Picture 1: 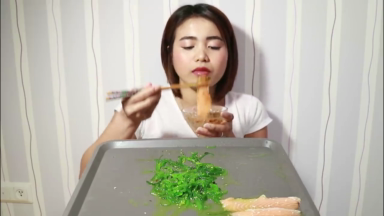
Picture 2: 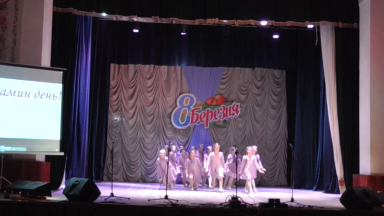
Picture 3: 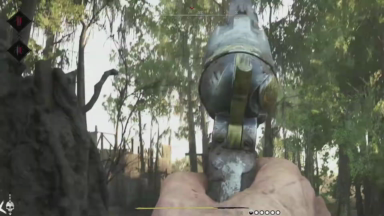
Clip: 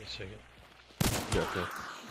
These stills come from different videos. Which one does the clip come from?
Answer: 3